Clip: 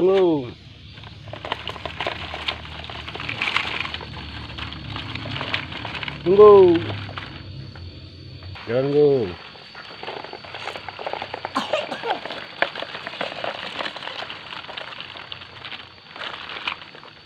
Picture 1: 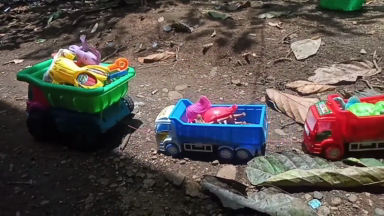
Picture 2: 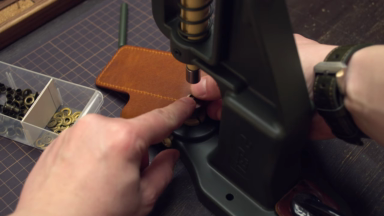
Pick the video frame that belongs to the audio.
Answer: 1